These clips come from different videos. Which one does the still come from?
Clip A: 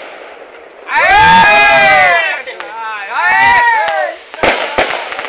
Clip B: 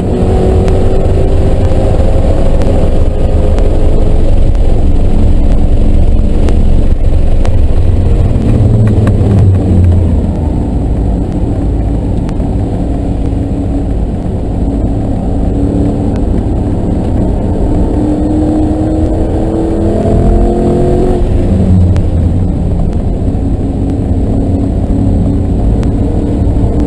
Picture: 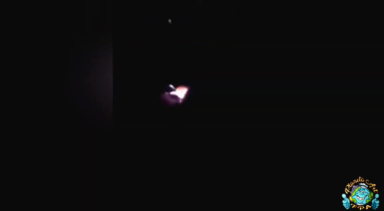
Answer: A